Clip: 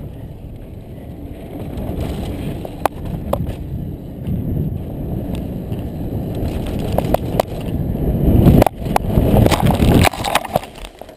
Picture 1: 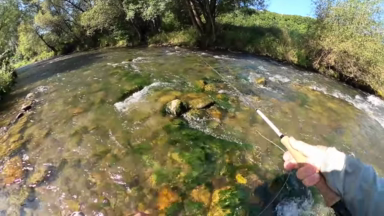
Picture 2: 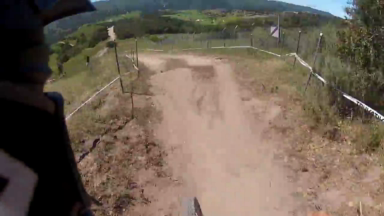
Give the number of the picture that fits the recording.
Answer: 2